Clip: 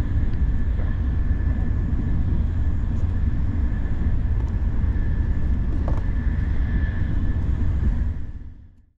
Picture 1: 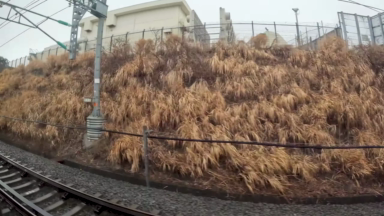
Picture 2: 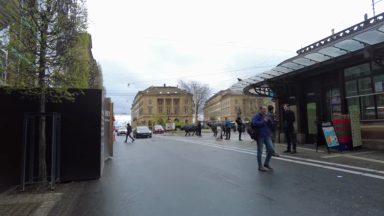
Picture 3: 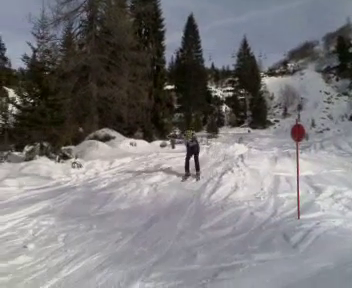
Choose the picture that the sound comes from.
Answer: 1